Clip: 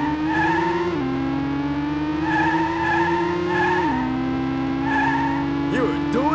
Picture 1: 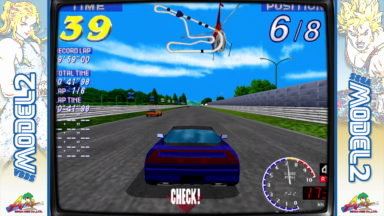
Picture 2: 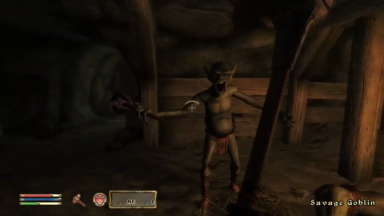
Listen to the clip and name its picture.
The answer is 1